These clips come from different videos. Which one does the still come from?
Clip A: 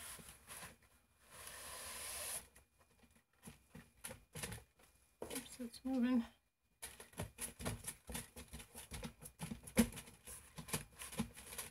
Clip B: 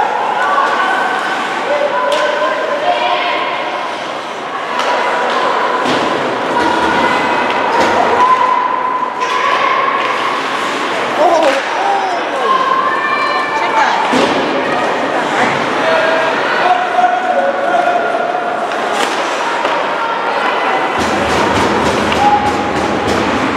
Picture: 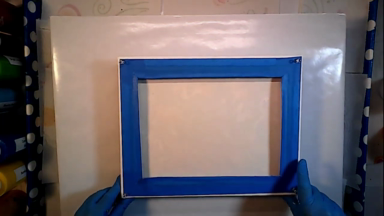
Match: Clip A